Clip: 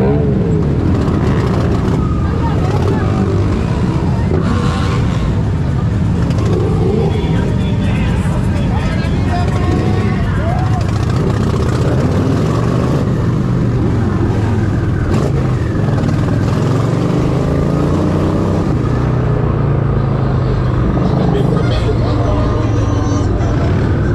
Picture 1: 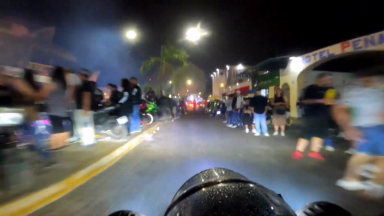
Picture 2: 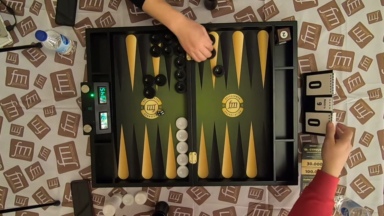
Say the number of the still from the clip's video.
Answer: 1